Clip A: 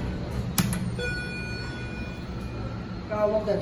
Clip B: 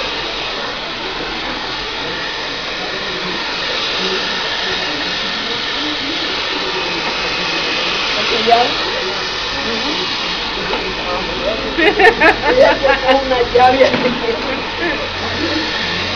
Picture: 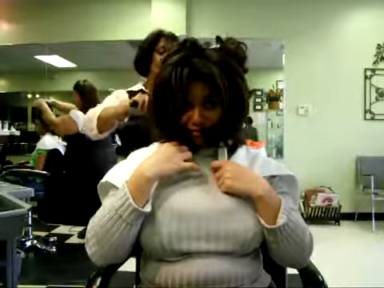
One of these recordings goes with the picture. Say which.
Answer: B